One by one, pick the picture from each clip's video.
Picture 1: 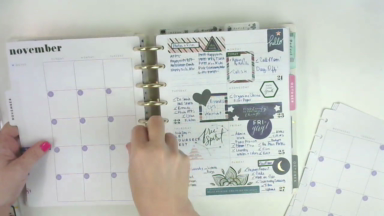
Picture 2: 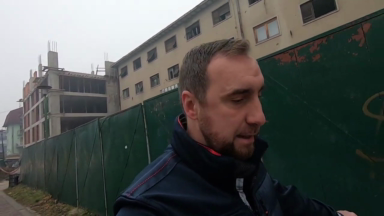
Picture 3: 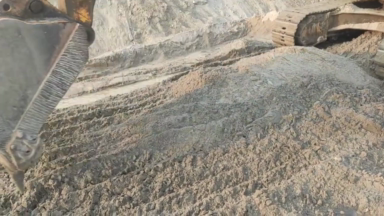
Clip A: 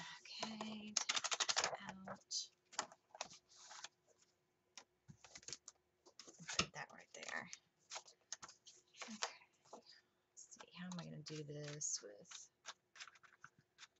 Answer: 1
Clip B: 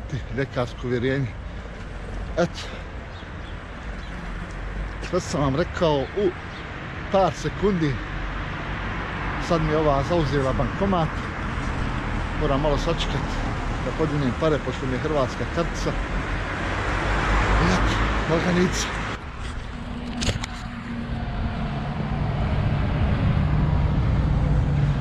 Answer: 2